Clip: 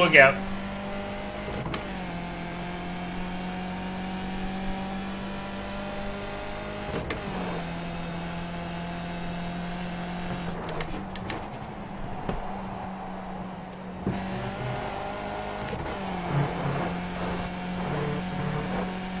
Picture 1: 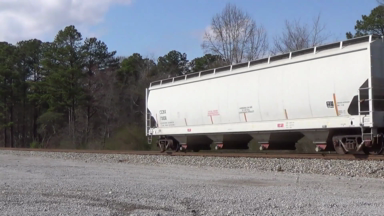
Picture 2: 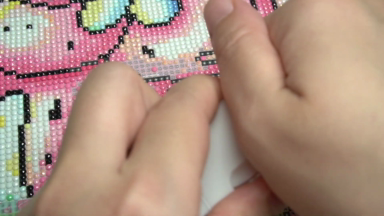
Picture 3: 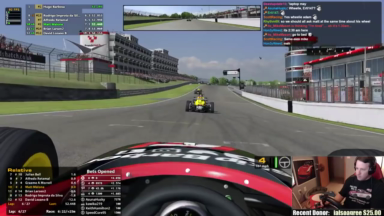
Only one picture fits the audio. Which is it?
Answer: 3